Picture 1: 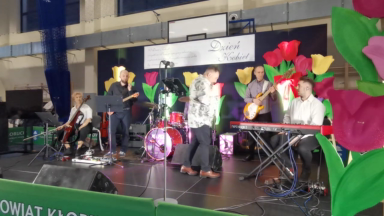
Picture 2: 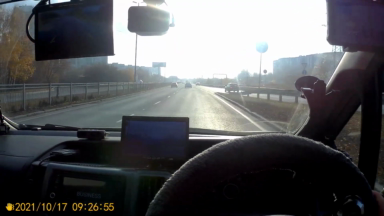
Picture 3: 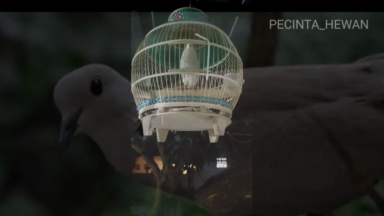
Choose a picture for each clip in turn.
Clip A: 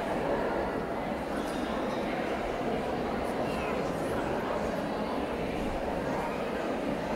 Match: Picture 1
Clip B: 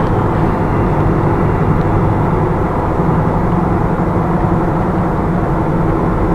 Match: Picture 2